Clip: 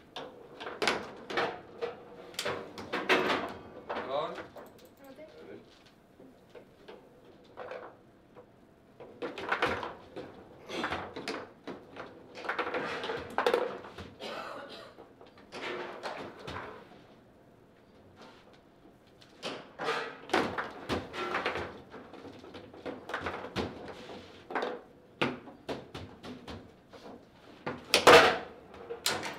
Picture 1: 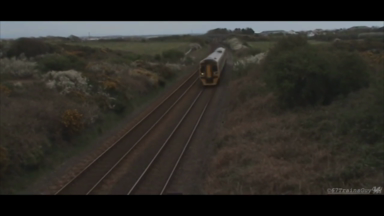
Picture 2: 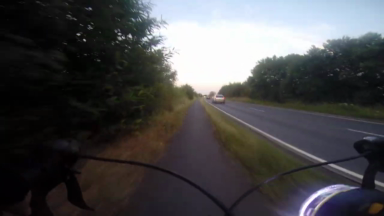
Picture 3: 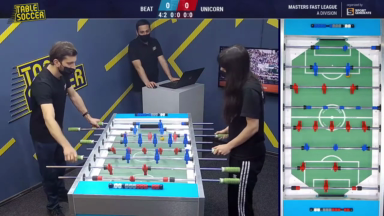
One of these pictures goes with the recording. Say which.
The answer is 3